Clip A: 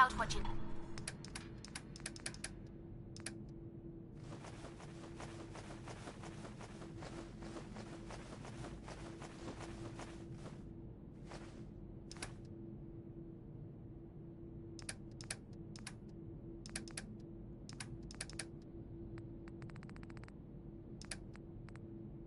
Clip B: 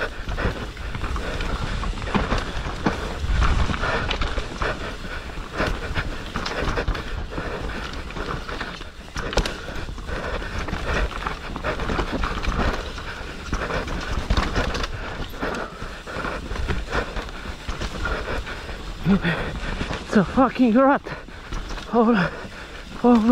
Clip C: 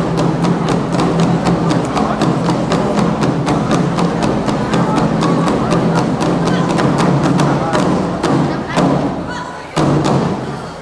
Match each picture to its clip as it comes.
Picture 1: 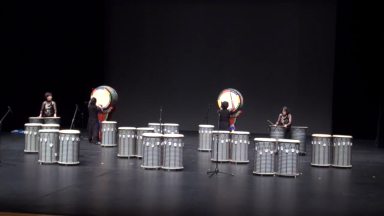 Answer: C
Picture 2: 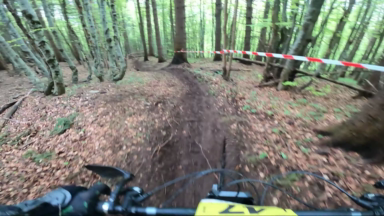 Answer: B